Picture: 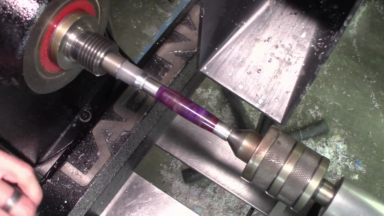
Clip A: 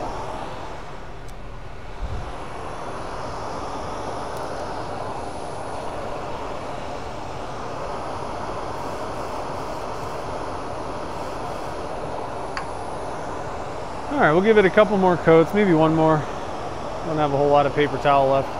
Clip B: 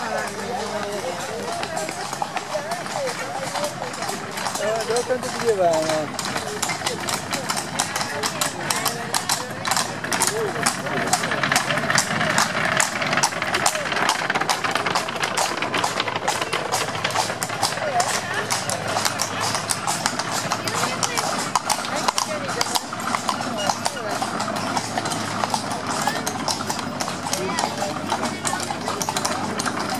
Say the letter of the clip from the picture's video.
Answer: A